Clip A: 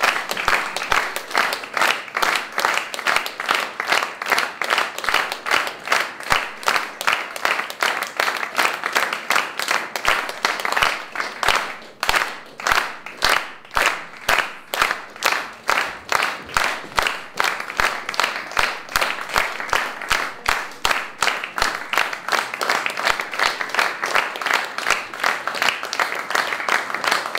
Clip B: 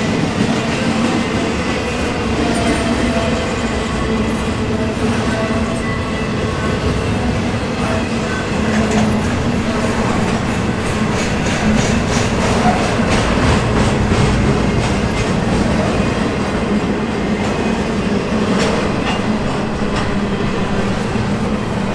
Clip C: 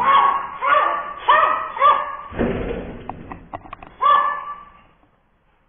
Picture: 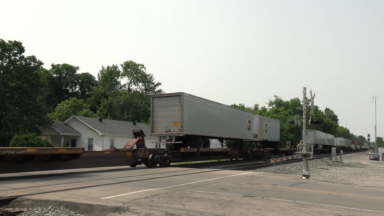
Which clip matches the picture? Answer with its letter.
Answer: B